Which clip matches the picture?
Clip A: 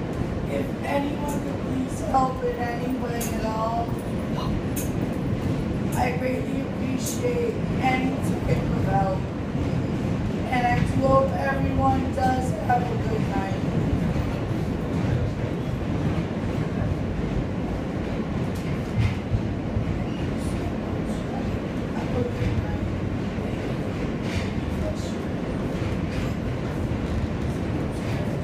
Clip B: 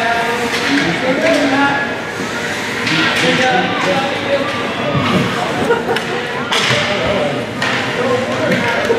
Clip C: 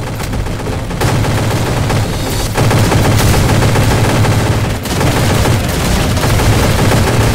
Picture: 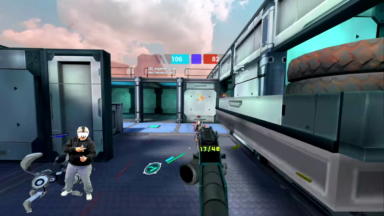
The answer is C